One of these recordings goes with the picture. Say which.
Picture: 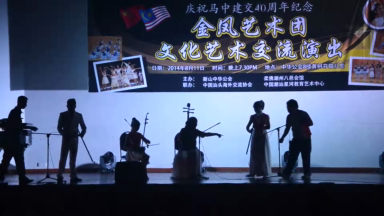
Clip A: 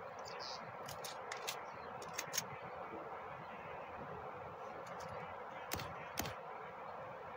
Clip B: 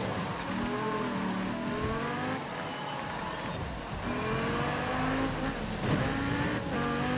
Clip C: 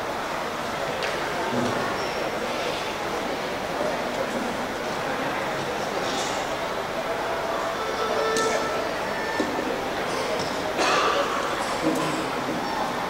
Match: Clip C